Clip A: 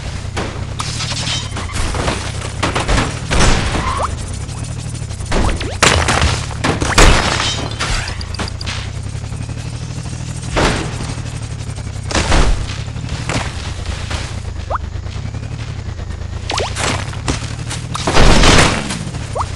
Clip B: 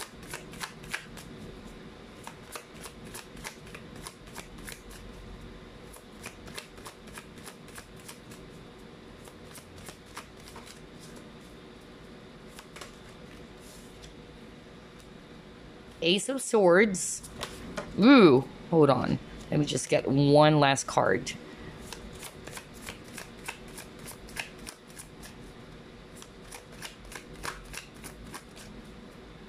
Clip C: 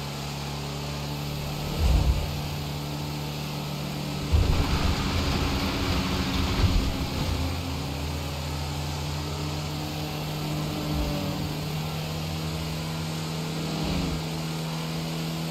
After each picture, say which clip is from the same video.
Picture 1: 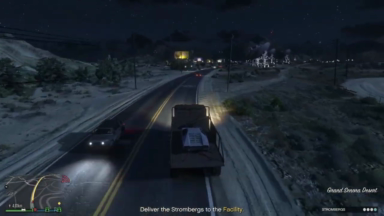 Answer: C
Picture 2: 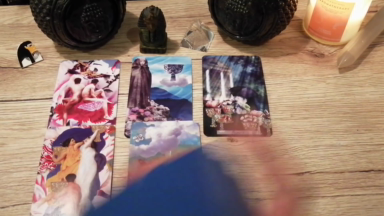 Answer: B